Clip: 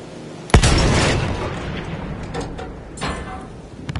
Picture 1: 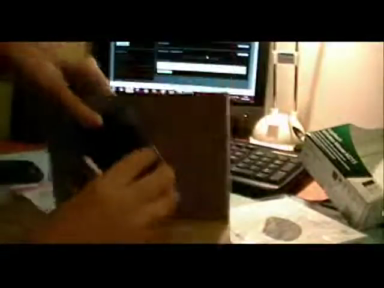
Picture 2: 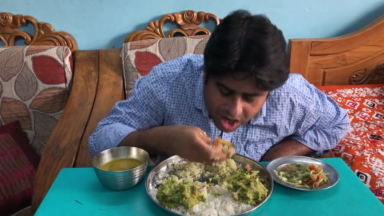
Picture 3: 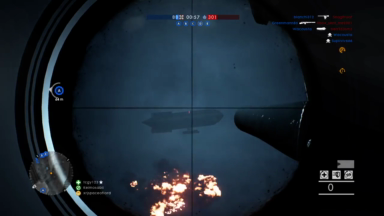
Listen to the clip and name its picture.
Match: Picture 3